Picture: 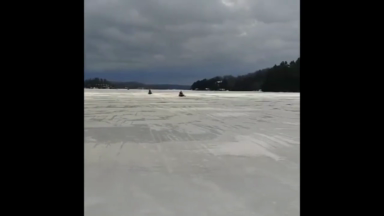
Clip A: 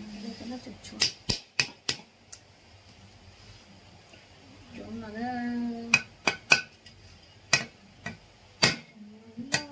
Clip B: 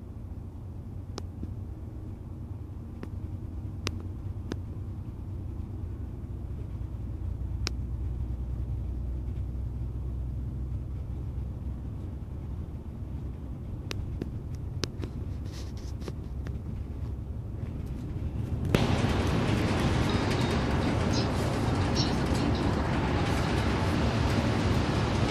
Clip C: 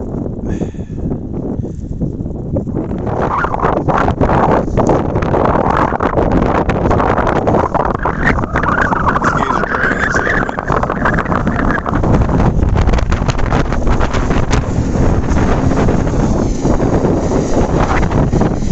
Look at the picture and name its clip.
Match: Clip C